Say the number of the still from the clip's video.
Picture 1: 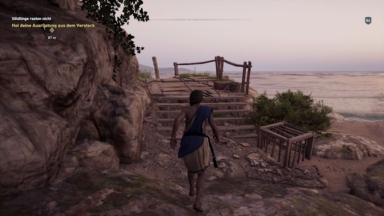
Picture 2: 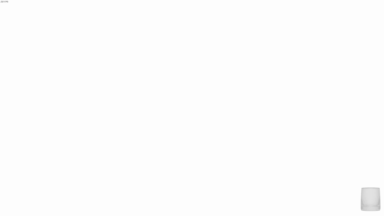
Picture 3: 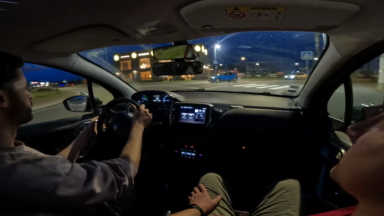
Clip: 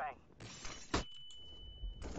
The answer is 2